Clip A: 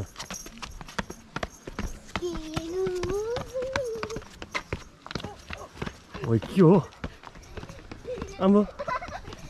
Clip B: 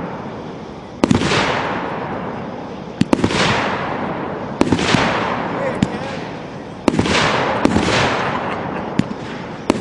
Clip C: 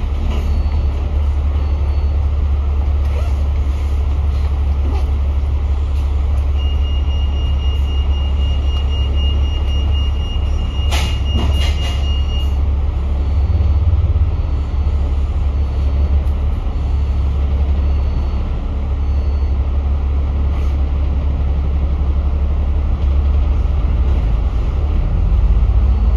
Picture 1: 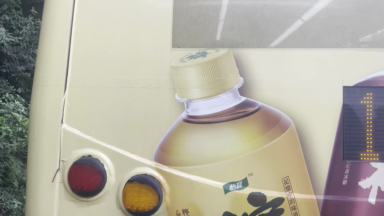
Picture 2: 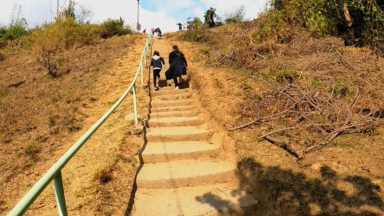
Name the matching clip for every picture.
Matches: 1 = C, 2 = A